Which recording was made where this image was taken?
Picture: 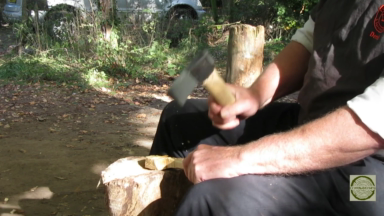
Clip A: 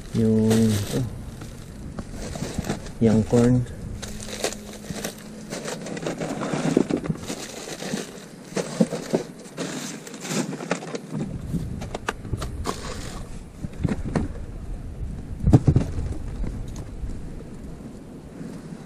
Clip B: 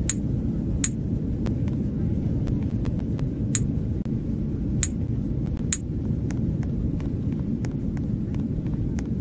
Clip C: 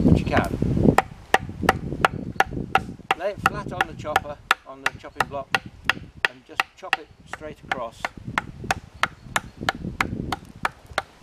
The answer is C